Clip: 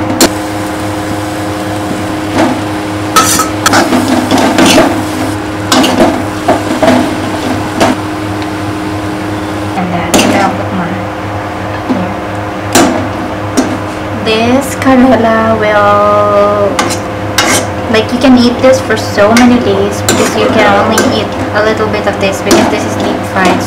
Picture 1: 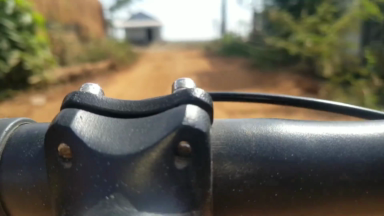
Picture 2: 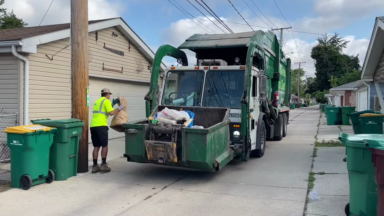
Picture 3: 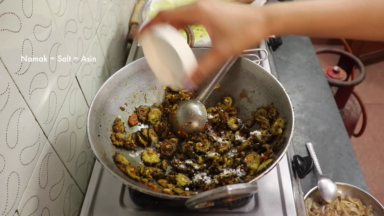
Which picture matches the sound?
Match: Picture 3